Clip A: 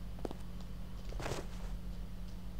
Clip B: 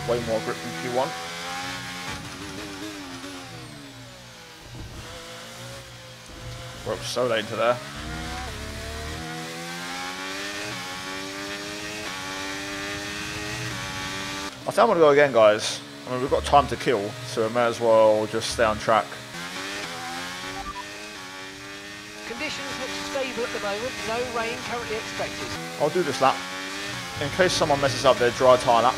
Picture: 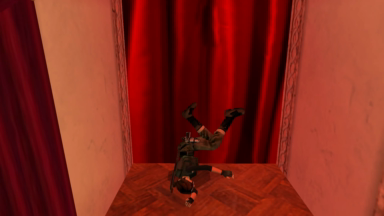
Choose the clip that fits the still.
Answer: A